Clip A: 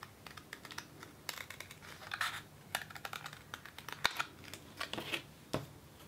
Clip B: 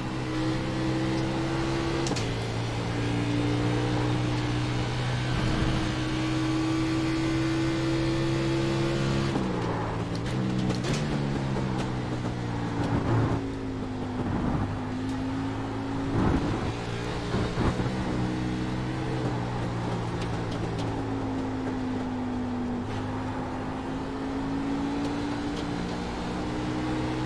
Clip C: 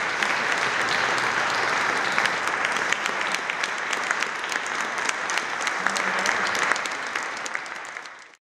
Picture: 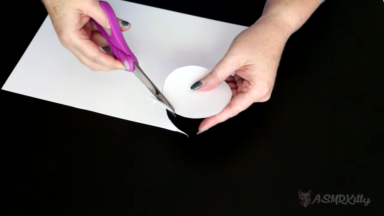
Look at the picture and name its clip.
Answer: A